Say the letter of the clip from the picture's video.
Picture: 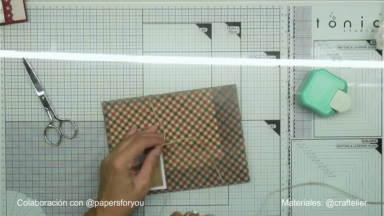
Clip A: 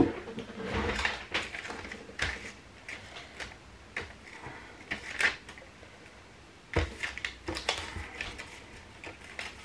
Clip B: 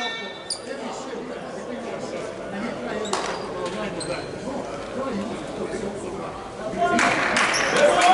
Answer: A